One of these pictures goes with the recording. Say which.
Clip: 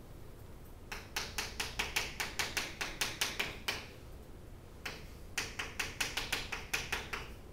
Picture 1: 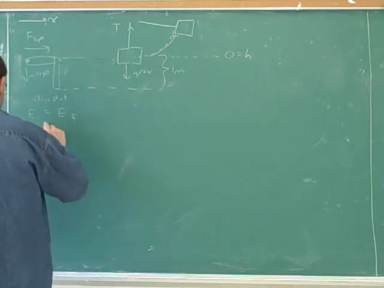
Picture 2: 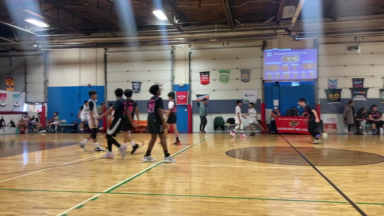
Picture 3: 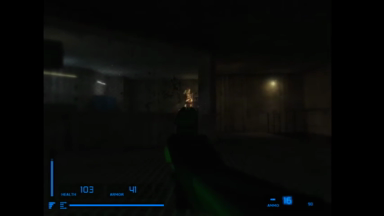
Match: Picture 1